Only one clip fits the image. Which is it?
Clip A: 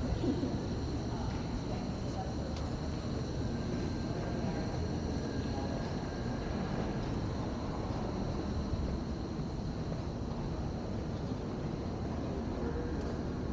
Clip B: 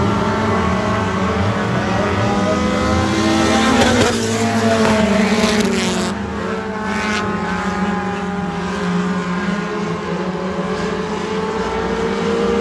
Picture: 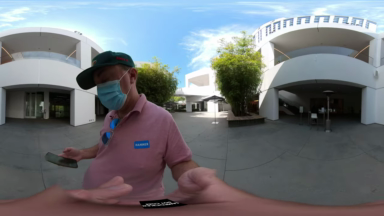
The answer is A